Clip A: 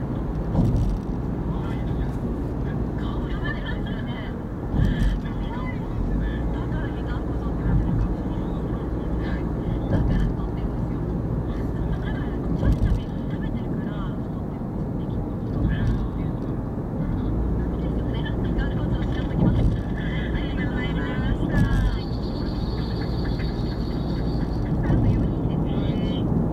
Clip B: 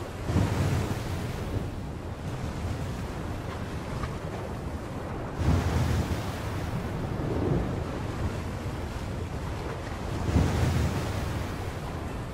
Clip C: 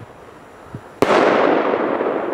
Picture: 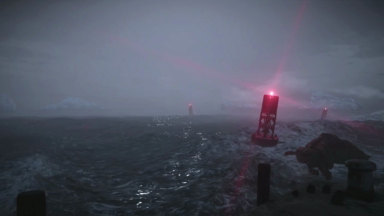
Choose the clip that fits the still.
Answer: B